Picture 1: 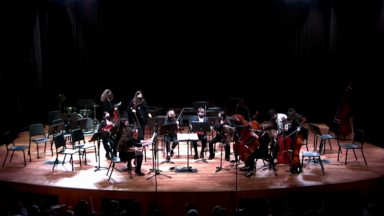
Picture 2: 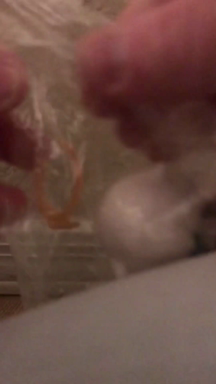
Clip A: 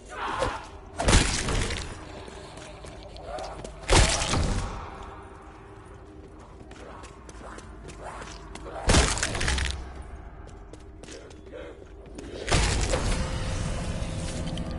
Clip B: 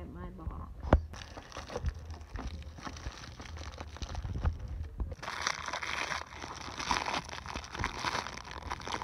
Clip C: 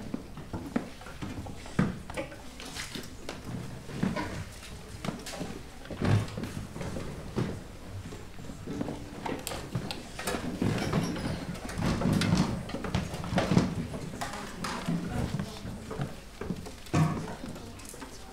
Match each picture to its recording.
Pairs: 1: C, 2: B